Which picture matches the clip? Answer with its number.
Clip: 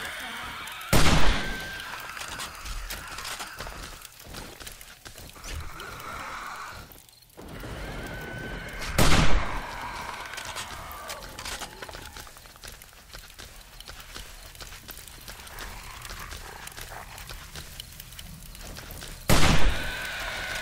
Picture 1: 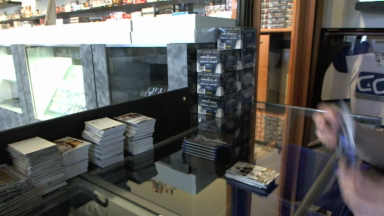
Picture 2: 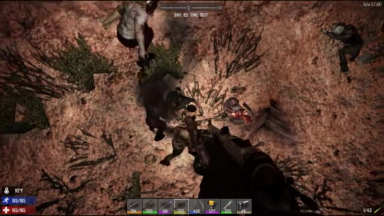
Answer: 2